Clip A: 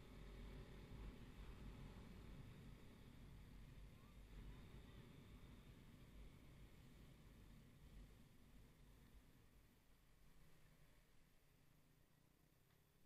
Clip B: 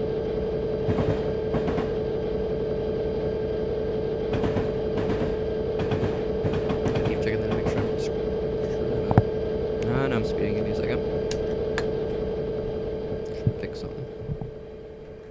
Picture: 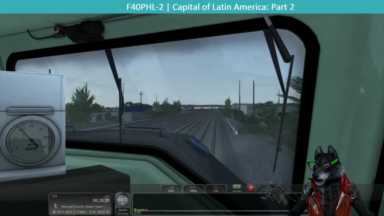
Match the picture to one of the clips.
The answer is B